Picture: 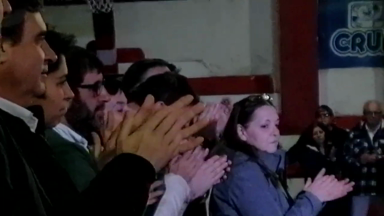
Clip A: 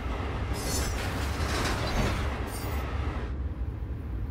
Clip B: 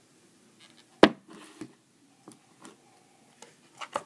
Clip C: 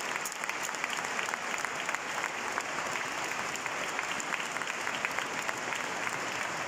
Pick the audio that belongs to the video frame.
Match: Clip C